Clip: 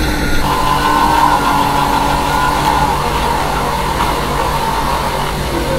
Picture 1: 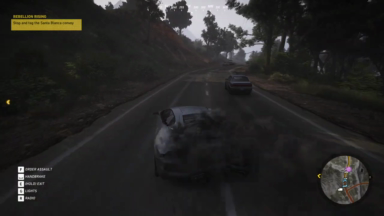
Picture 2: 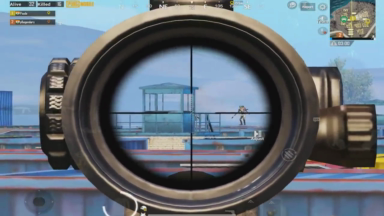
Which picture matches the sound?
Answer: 1